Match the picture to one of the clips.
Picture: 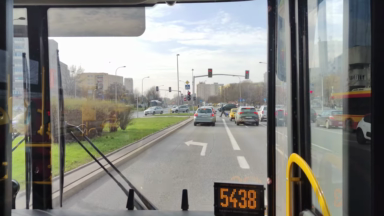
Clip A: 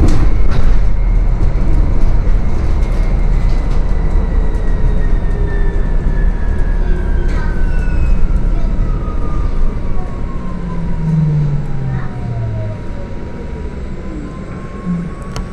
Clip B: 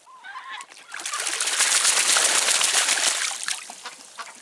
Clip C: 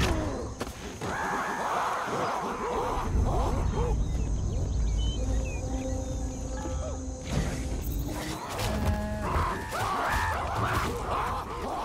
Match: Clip A